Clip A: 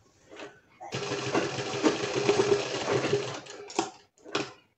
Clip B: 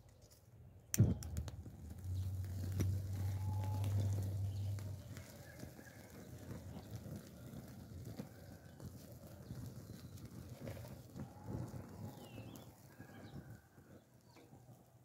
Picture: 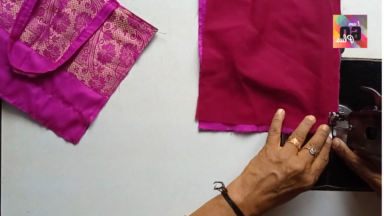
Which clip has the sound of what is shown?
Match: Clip A